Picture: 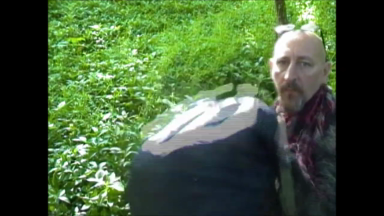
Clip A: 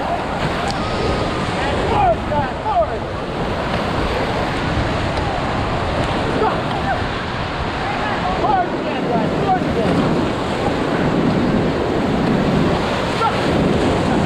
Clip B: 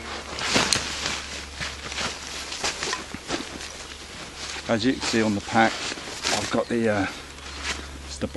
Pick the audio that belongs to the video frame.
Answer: B